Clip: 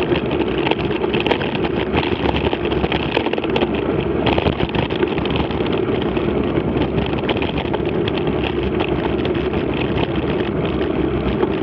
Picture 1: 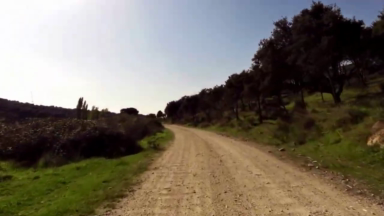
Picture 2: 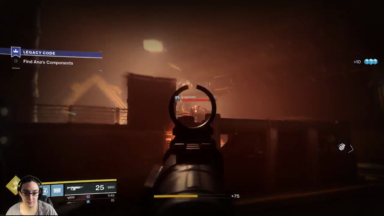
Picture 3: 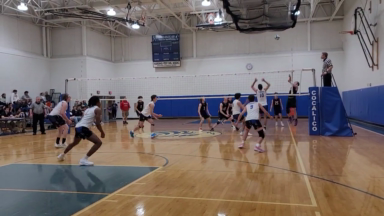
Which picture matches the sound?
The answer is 1